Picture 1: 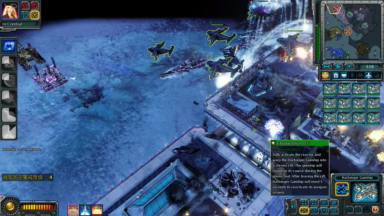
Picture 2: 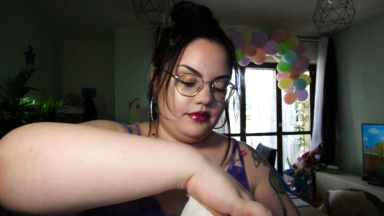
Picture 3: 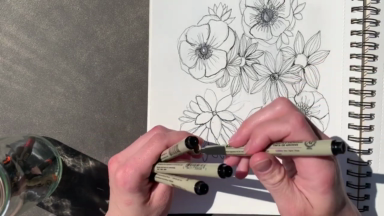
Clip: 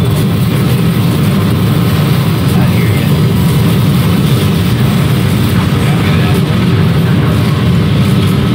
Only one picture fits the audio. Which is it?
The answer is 1